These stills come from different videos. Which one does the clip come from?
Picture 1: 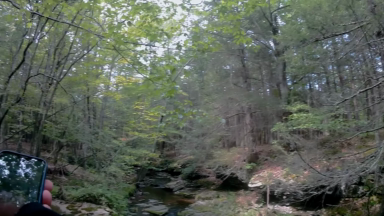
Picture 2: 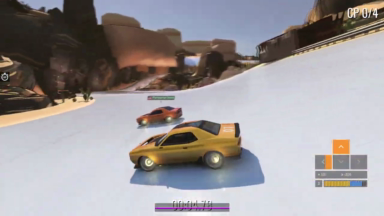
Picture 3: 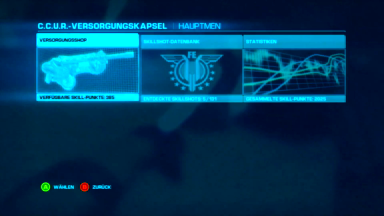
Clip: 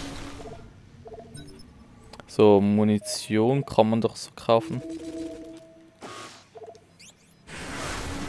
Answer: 3